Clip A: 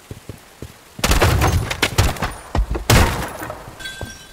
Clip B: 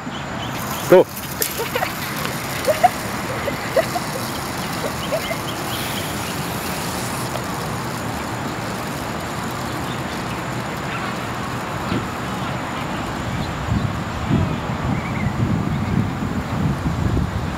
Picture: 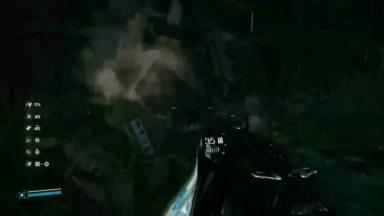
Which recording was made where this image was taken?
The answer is A